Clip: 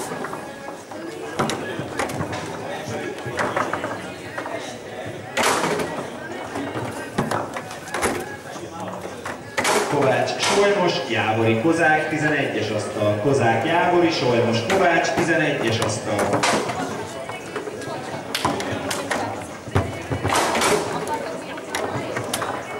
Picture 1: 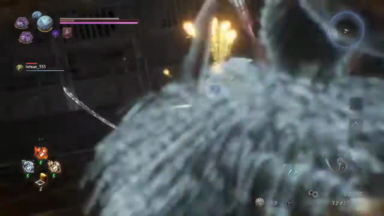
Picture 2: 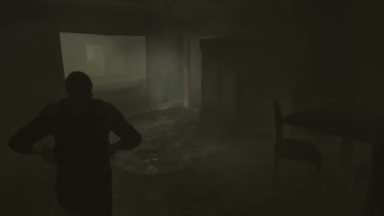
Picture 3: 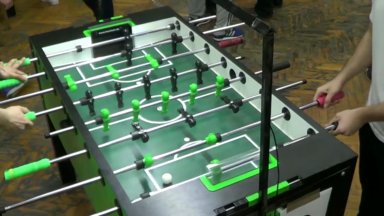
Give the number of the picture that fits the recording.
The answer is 3